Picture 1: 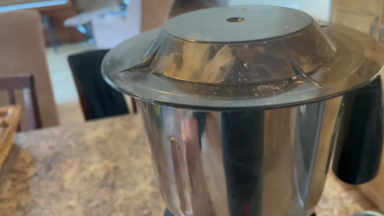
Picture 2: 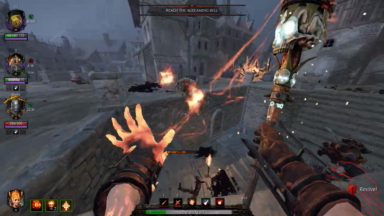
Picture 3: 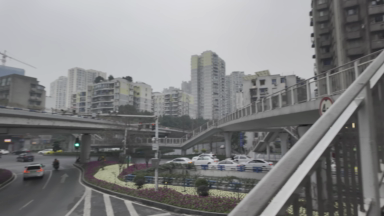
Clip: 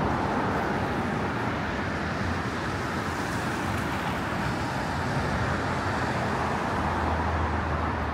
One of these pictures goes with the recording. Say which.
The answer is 3